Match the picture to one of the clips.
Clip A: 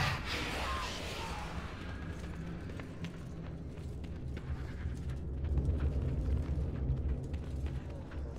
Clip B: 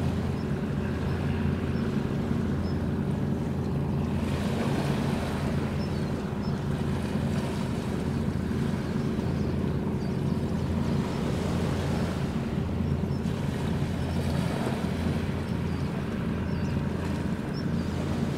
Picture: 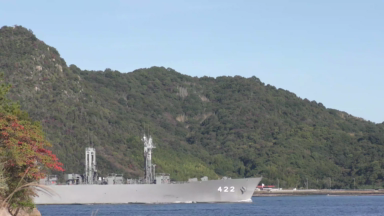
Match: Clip B